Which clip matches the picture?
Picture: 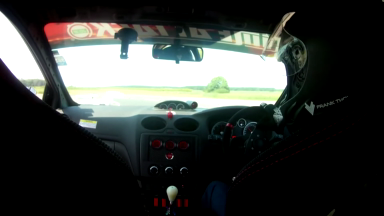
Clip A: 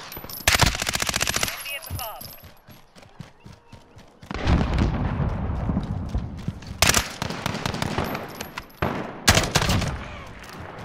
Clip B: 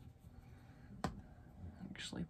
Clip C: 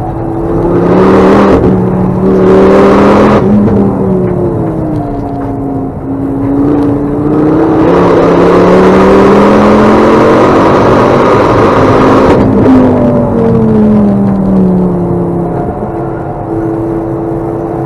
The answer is C